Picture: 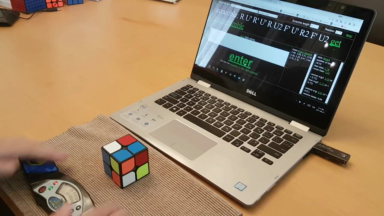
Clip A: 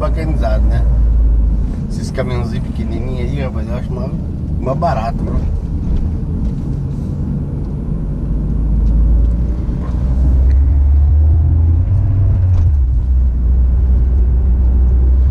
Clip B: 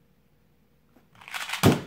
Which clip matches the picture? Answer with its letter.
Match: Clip B